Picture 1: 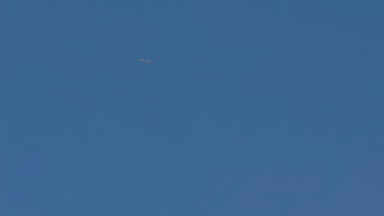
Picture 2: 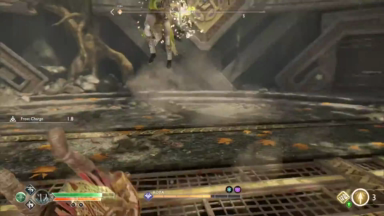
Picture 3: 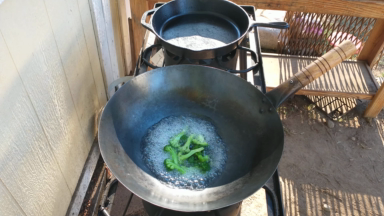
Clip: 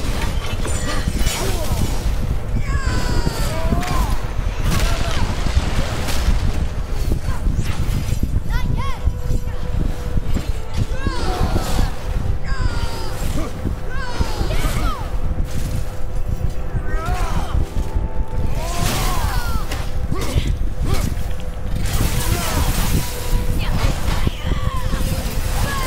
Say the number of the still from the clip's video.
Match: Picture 2